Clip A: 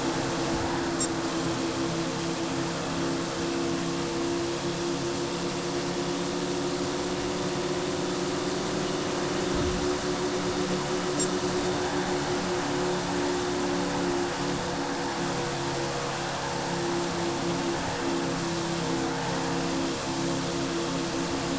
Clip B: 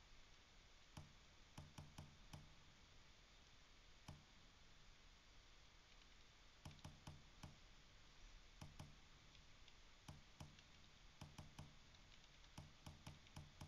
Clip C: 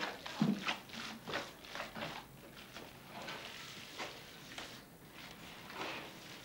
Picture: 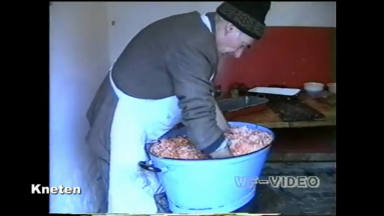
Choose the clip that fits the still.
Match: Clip C